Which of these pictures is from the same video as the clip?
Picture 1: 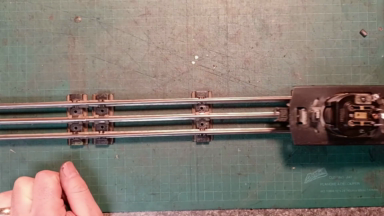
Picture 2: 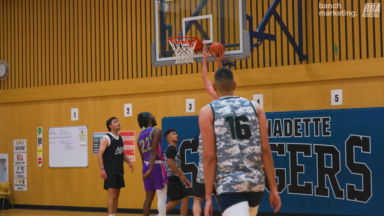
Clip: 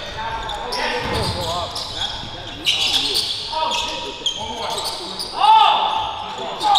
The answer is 2